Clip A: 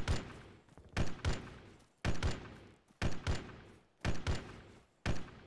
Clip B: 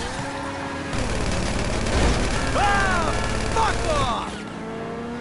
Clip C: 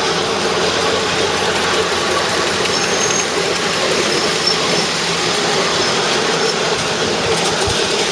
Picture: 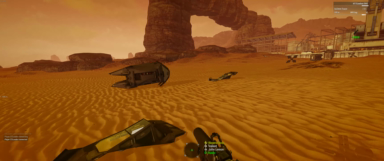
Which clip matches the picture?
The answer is A